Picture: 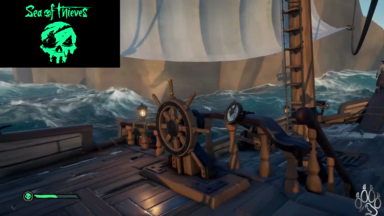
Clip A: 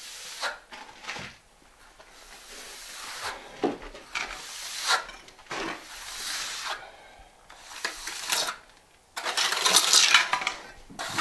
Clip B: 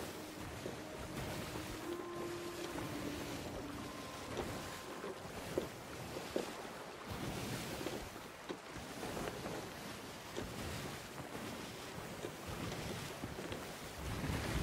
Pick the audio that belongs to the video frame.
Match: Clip B